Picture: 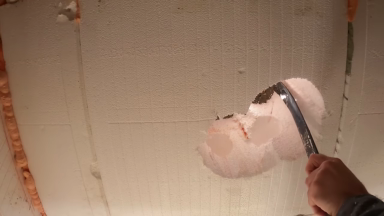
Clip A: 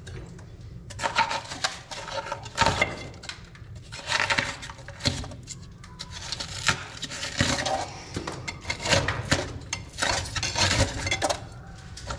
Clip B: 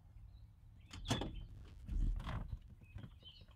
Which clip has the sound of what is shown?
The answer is A